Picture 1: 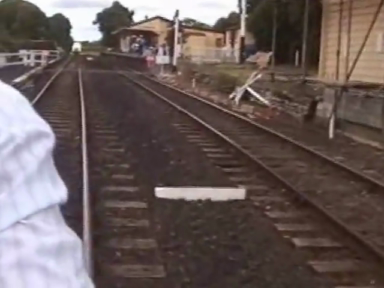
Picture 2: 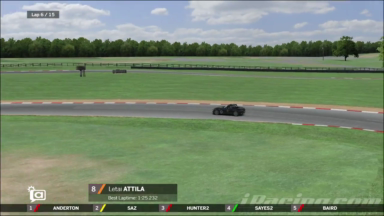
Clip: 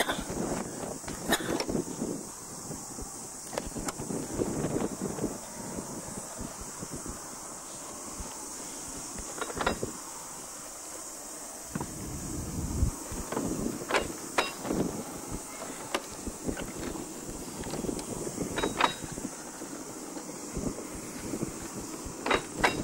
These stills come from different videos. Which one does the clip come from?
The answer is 1